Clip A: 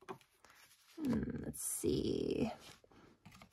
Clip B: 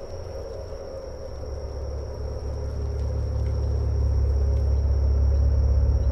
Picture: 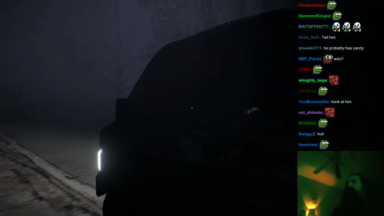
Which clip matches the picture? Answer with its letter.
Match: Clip B